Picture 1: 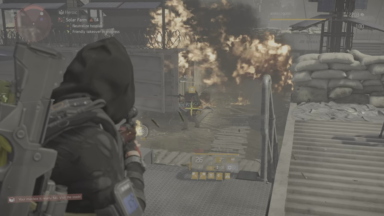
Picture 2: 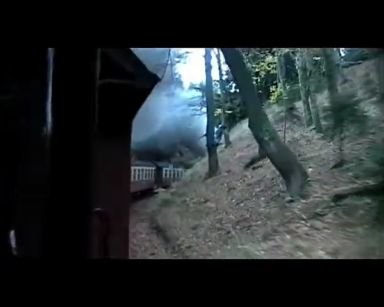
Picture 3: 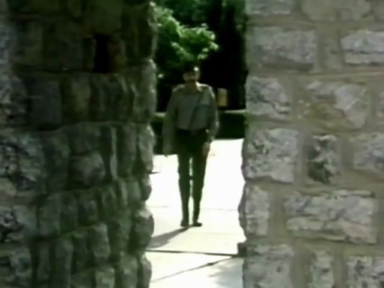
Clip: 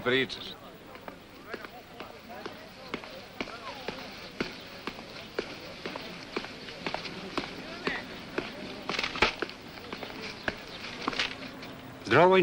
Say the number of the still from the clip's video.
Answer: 3